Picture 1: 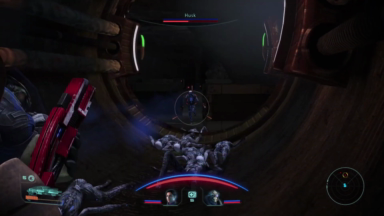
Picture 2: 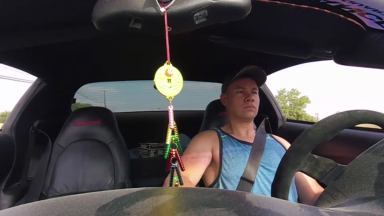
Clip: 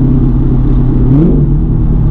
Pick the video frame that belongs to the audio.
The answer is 2